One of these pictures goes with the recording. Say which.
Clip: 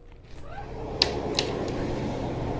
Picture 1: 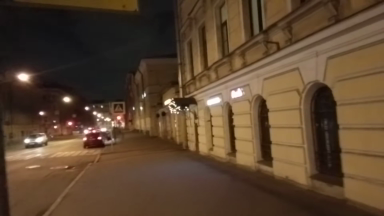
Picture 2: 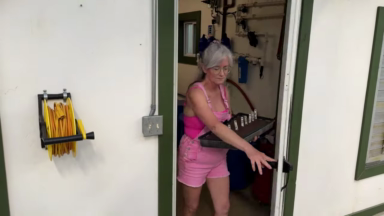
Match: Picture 2